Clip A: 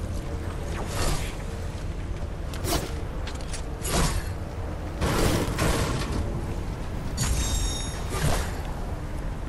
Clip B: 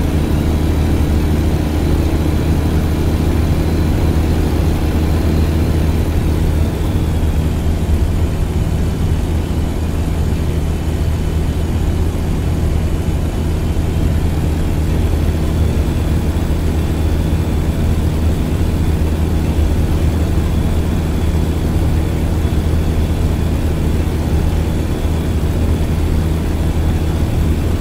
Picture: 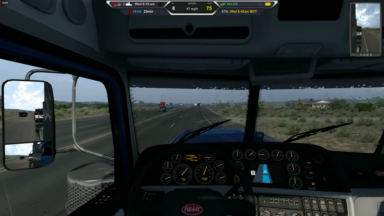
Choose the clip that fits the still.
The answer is B